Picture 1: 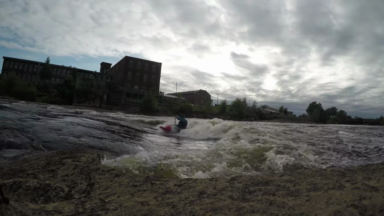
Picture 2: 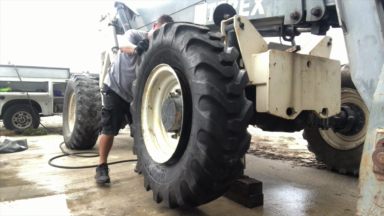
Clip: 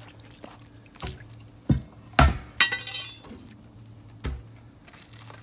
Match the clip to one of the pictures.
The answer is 2